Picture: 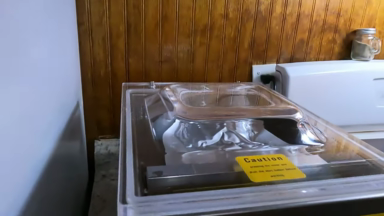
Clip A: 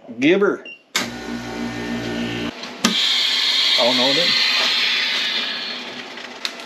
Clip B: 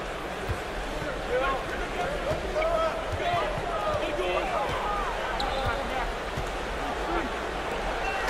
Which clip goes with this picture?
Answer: A